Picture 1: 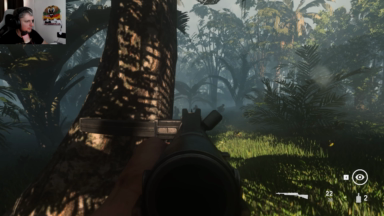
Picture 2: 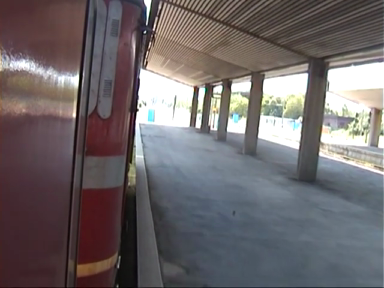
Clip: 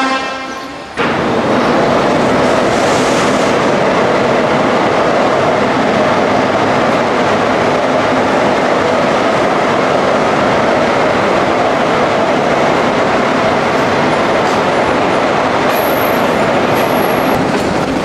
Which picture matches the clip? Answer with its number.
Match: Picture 2